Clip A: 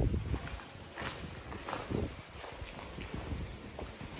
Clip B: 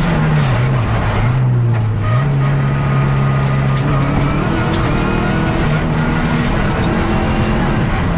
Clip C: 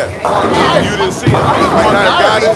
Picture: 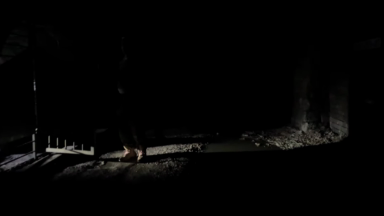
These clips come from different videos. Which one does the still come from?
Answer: A